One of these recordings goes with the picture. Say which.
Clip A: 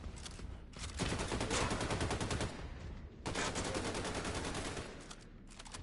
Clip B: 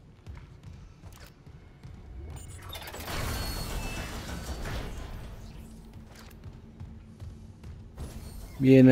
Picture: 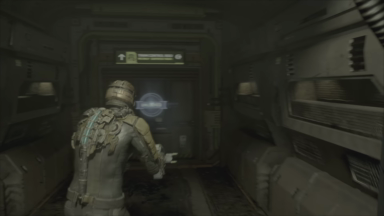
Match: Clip B